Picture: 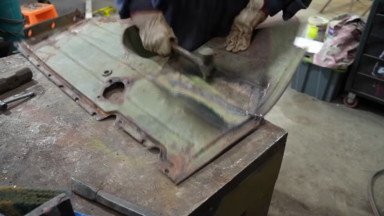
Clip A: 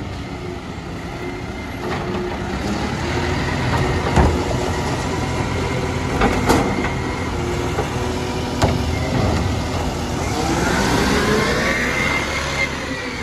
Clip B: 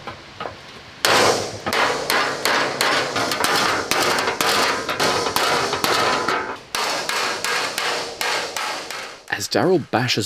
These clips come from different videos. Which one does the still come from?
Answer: B